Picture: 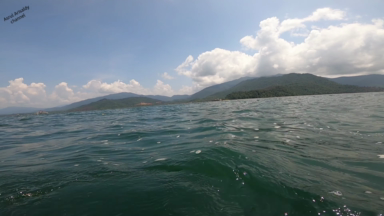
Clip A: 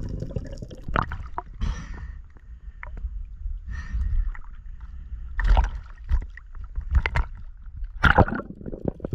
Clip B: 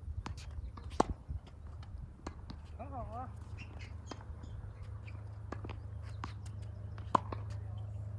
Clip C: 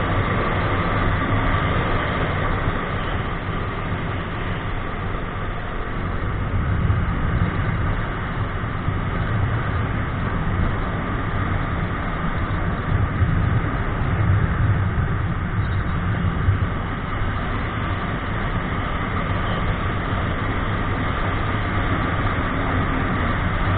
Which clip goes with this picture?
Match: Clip A